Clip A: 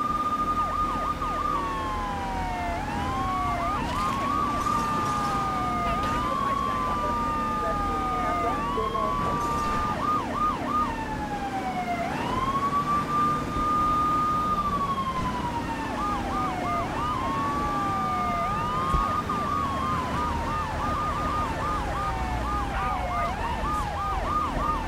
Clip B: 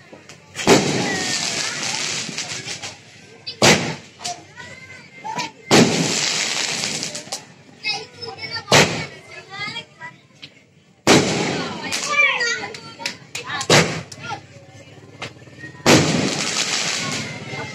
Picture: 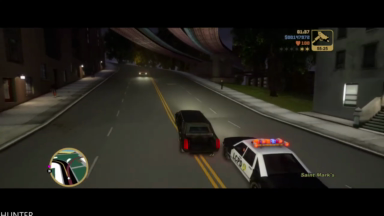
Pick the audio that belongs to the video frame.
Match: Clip A